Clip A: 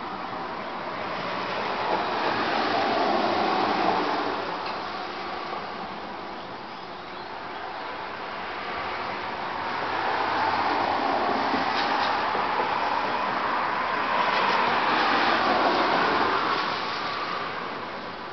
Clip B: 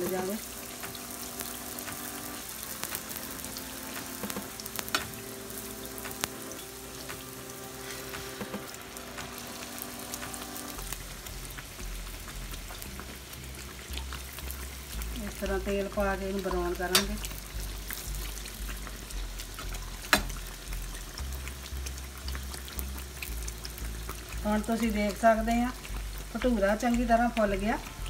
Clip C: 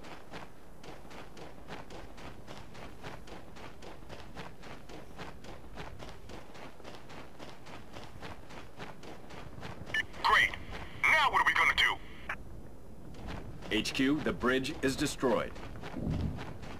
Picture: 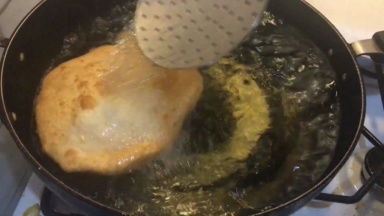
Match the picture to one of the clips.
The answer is B